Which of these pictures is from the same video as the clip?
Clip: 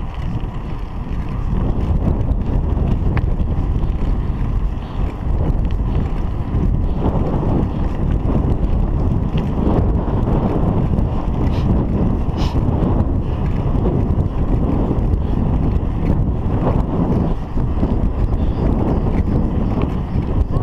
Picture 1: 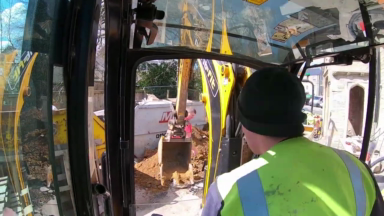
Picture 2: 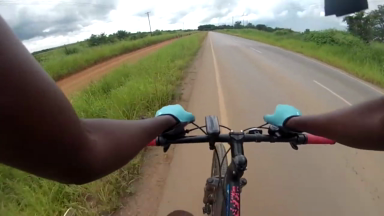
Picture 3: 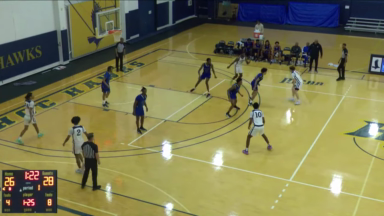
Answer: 2